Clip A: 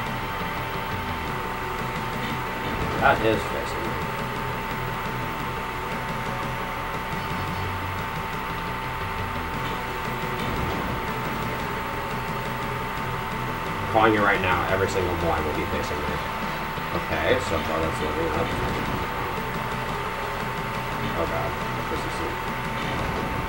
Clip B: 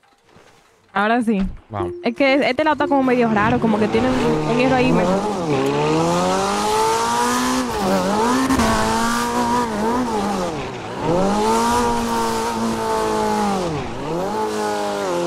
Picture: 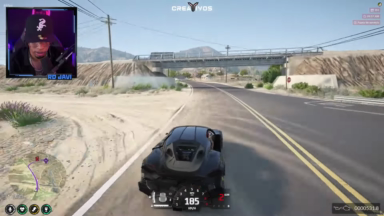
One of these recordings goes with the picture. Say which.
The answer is B